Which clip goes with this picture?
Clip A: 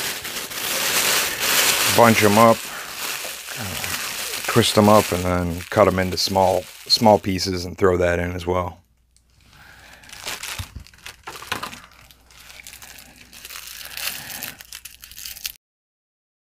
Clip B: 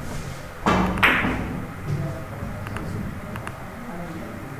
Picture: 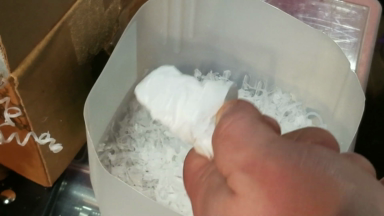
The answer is A